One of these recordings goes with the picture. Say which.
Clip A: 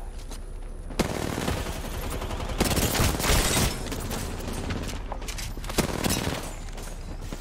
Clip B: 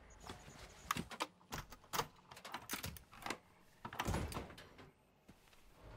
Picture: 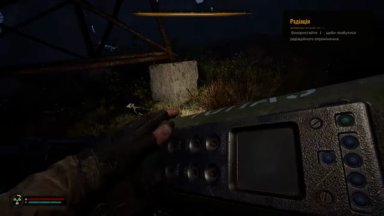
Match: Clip B